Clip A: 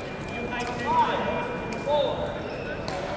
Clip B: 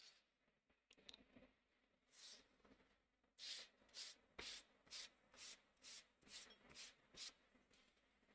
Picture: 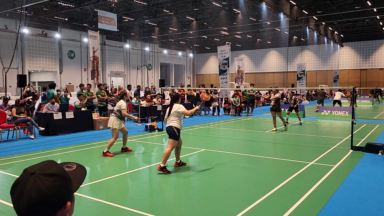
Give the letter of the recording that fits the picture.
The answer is A